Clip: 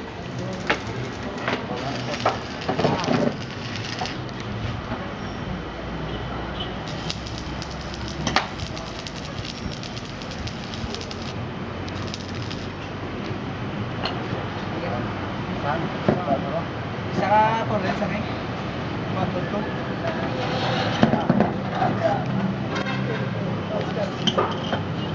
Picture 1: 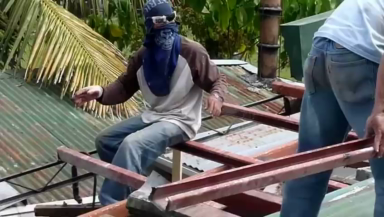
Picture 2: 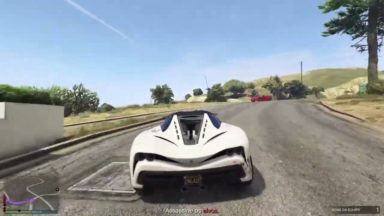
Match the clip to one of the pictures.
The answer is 1